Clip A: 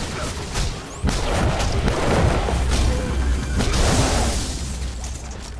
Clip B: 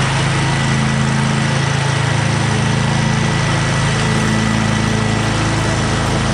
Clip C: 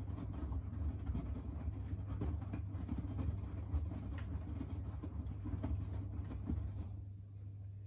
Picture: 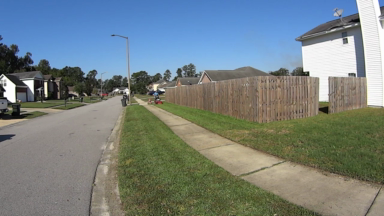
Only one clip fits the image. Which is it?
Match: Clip B